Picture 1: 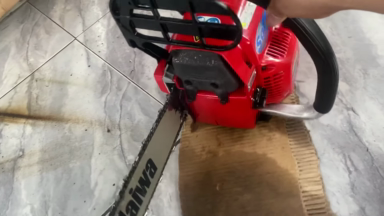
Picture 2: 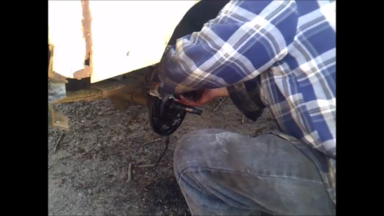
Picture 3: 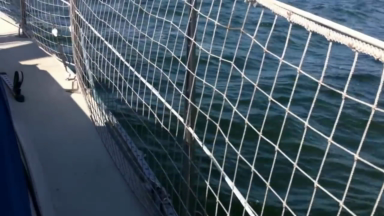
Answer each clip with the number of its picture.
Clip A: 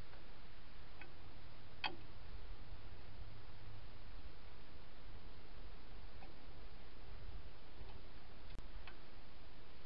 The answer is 2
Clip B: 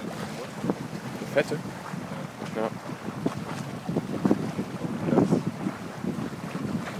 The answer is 3